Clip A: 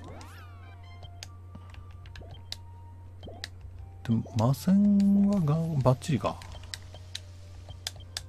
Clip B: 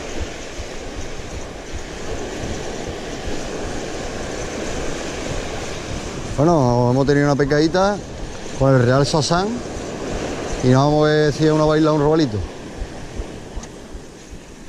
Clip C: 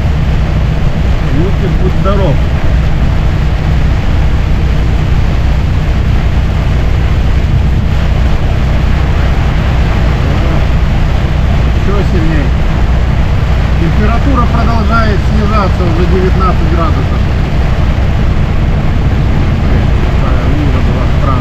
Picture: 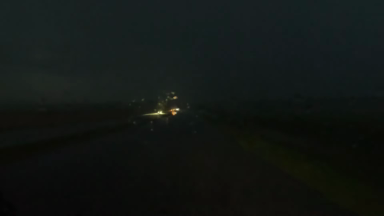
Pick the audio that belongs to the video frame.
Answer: C